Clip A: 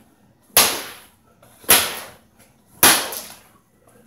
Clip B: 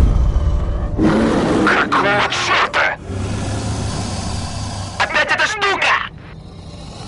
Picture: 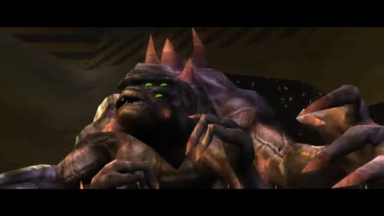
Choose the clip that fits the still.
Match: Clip B